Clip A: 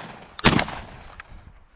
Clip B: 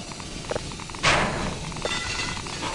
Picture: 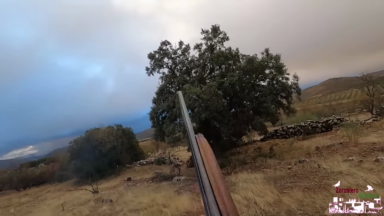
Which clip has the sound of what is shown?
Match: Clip A